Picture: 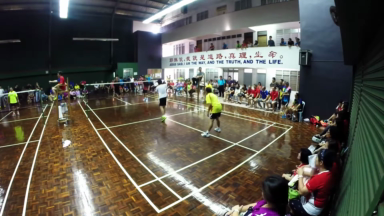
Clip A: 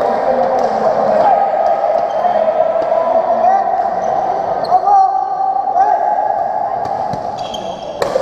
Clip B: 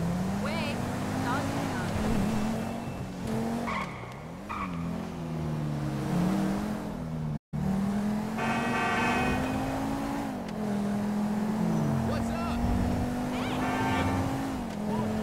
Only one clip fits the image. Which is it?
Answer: A